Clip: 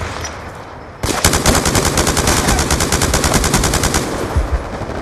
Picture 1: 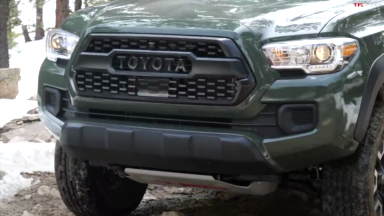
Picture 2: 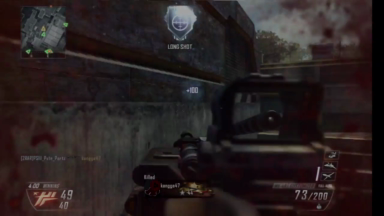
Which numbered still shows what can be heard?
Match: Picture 2